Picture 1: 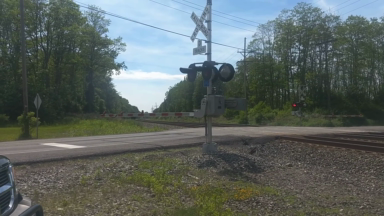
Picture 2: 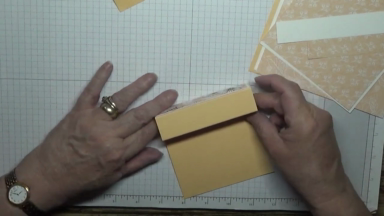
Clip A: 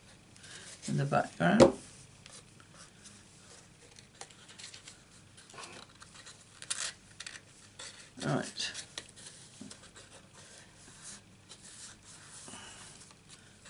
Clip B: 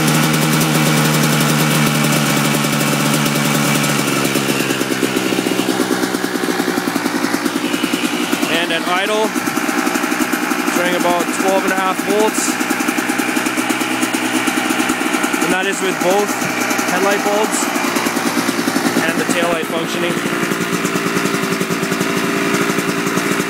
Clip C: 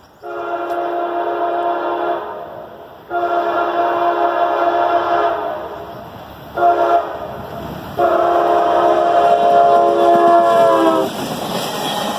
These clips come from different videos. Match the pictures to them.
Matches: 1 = C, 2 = A